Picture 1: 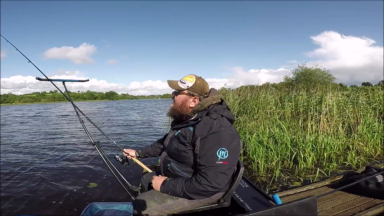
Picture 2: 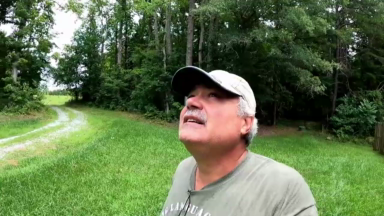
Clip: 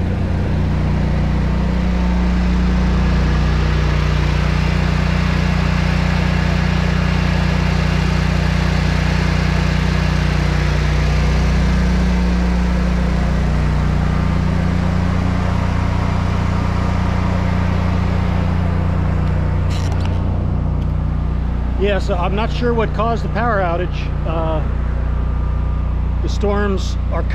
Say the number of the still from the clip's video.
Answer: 2